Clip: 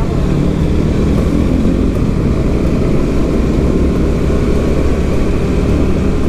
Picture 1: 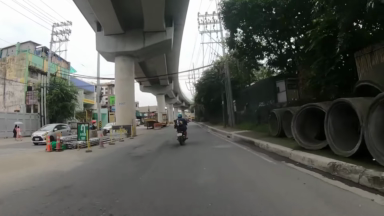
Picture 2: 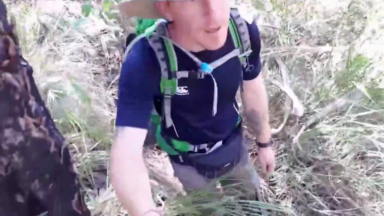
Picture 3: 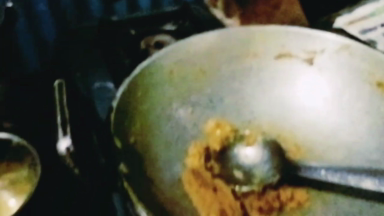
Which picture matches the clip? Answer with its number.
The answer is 1